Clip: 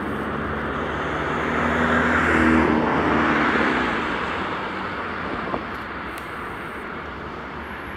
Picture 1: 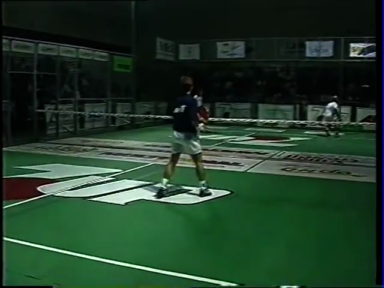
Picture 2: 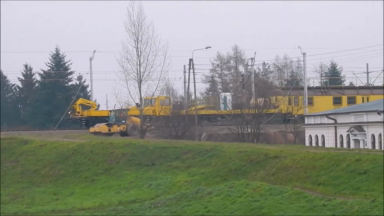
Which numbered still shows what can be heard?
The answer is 2